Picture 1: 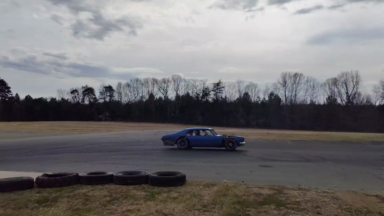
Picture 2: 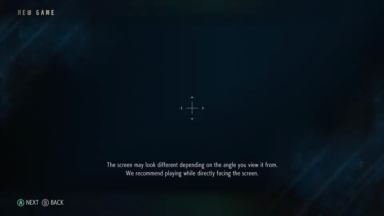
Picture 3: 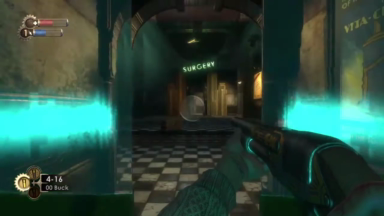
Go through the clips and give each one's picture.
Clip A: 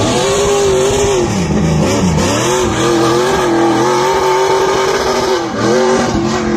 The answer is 1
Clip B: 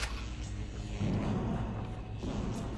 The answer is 3